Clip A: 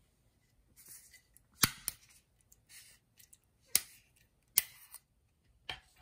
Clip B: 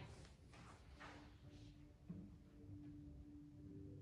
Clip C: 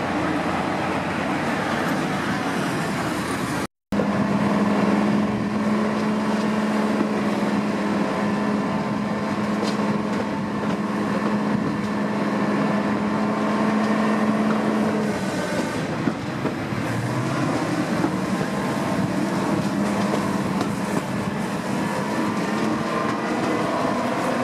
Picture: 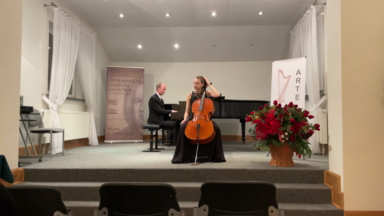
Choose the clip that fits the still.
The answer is B